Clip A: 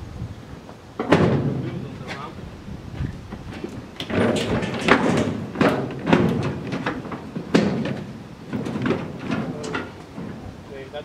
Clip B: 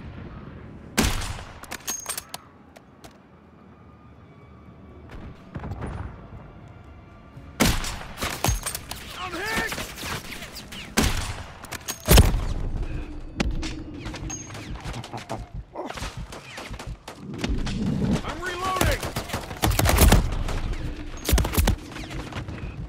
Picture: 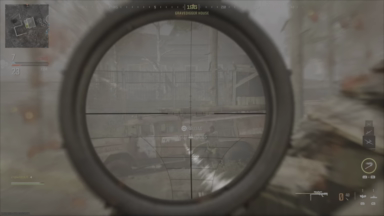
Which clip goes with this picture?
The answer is B